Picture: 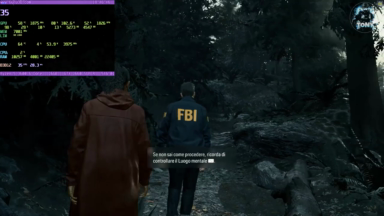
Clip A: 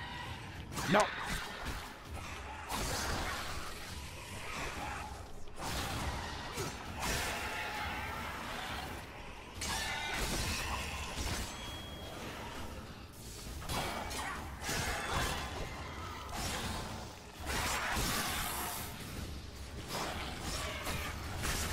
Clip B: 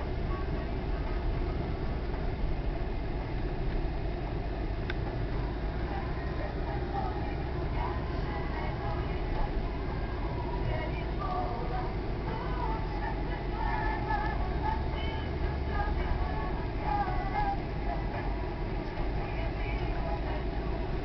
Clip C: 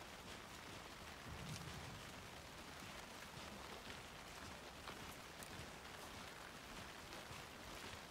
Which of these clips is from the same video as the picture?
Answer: C